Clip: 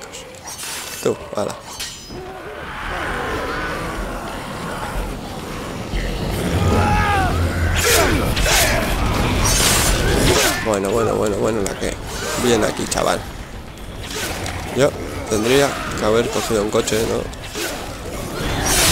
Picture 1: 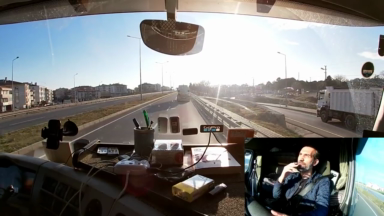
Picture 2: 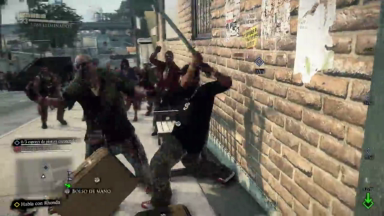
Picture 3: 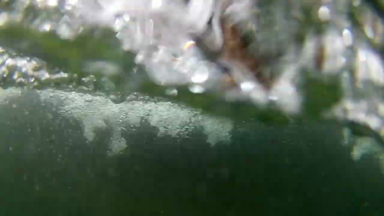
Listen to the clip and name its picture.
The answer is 2